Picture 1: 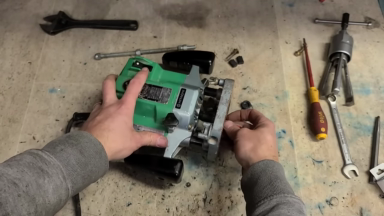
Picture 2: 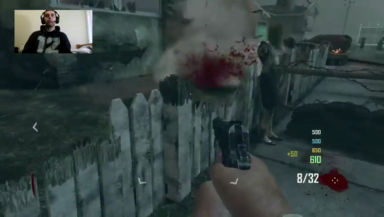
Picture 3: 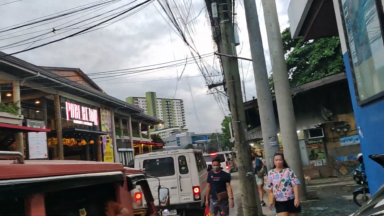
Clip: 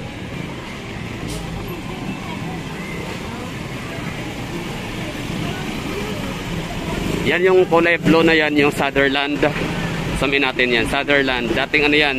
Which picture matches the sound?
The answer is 3